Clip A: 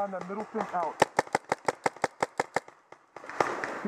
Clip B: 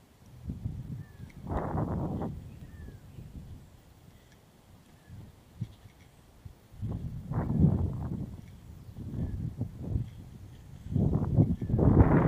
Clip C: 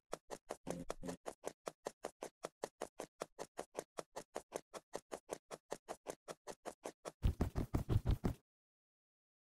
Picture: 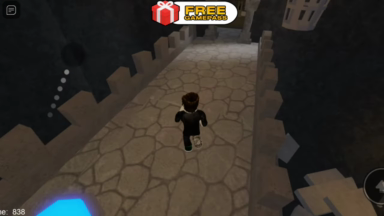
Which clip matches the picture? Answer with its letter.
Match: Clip C